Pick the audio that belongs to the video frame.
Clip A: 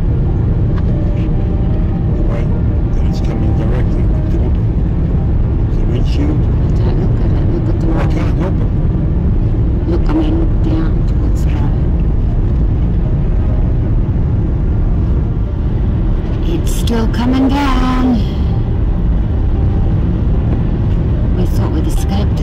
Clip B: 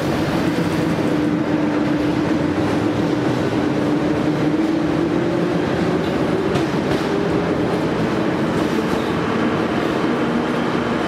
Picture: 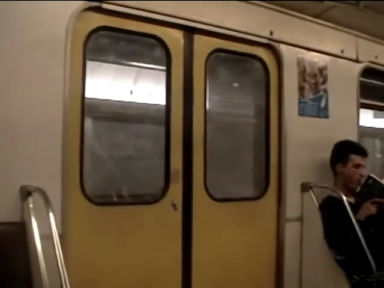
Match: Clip B